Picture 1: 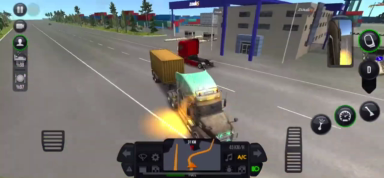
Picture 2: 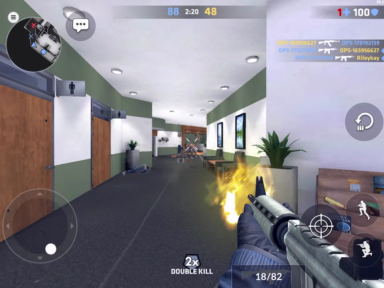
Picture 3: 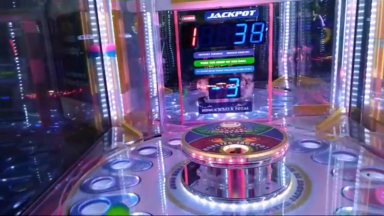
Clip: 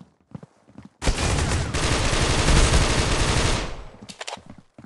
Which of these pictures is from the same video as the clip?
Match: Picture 2